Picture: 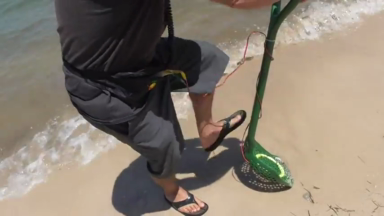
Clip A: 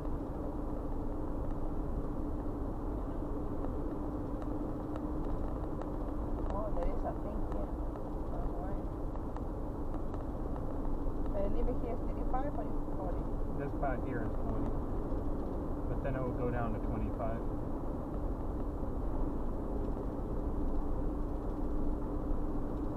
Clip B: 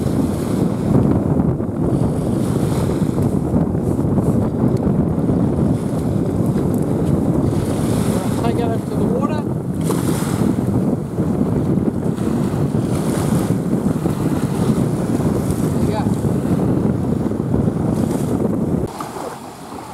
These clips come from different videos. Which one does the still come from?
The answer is B